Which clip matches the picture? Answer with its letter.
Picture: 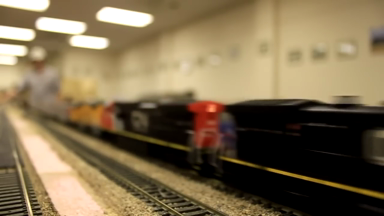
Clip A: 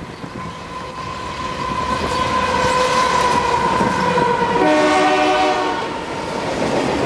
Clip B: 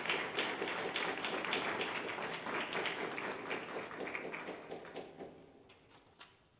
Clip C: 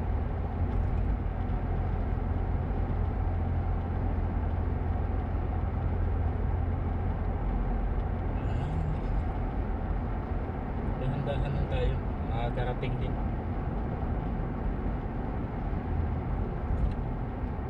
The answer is A